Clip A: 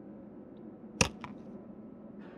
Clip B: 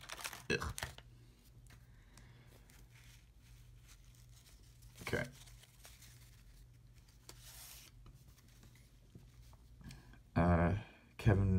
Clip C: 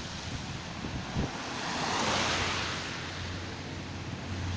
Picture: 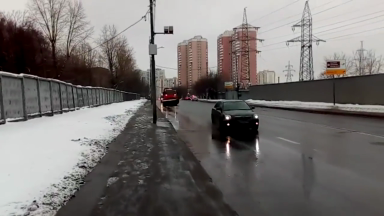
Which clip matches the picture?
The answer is C